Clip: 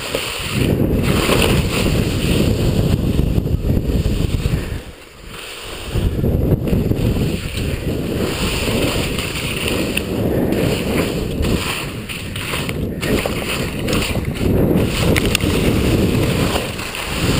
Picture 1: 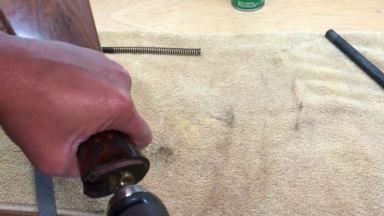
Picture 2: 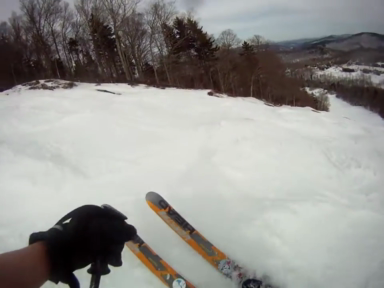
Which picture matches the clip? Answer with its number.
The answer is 2